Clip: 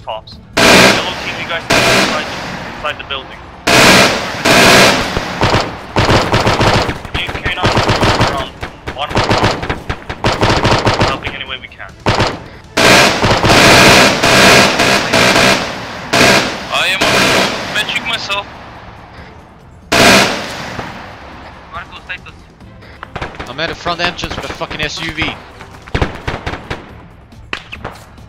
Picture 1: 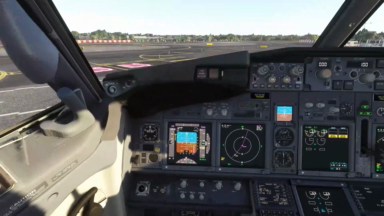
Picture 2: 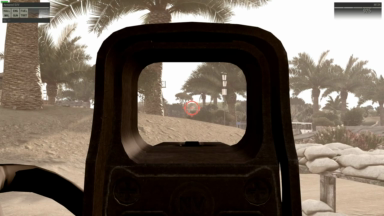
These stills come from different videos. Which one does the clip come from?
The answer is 2